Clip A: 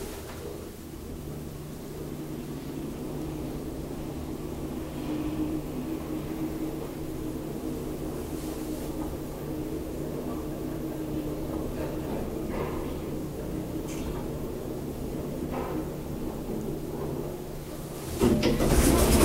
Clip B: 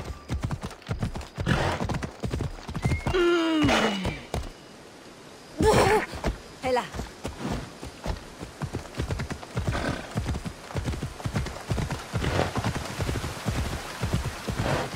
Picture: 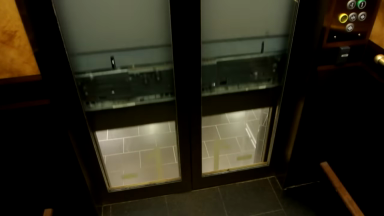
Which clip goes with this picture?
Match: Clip A